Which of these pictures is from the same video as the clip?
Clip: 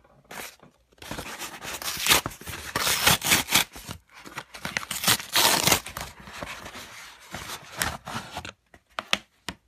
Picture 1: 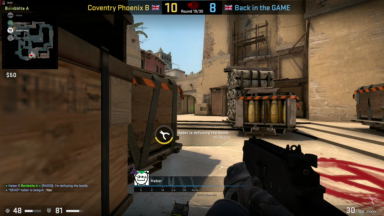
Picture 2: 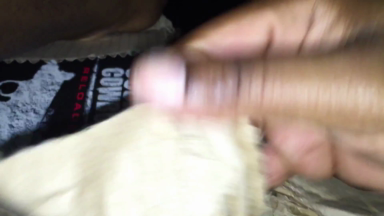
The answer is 2